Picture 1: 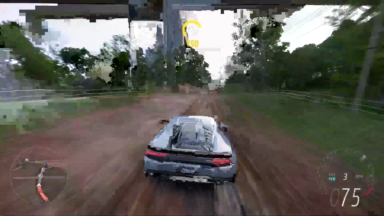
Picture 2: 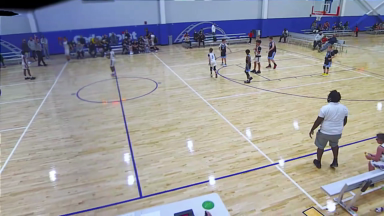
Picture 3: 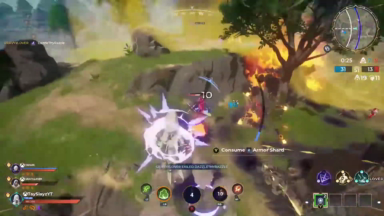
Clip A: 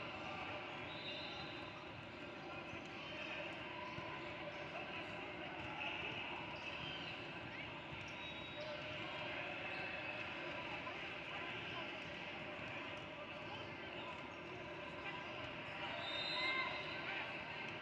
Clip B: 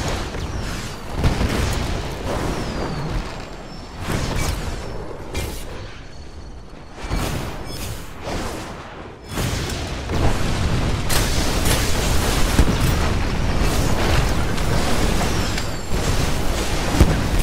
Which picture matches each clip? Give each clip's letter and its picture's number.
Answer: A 2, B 3